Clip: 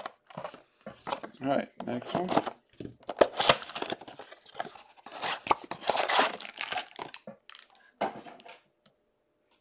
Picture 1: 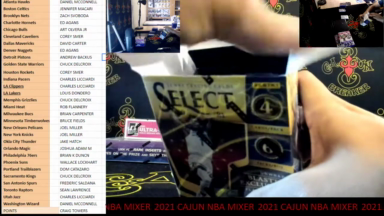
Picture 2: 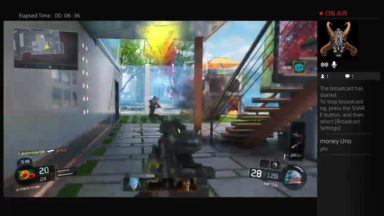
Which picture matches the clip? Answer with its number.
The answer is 1